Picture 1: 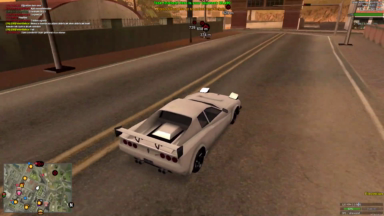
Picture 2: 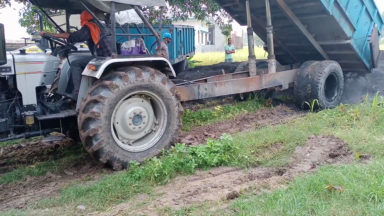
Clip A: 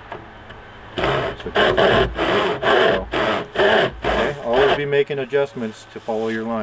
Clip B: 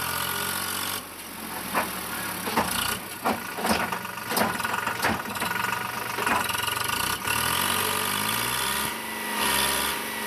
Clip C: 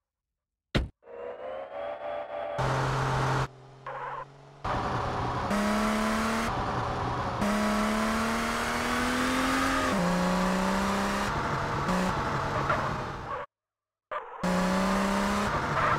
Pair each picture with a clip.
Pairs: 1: C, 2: B